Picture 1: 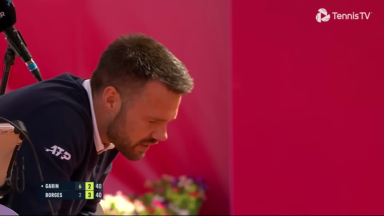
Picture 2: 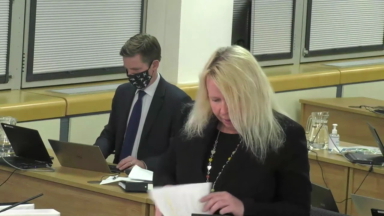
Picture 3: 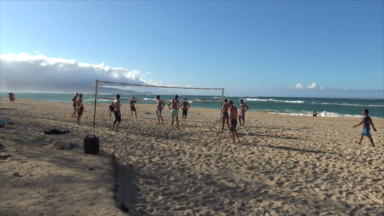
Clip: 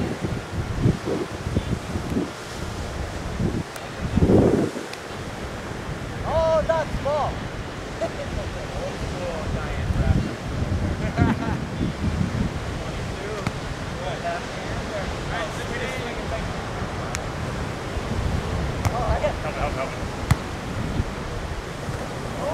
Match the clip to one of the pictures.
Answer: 3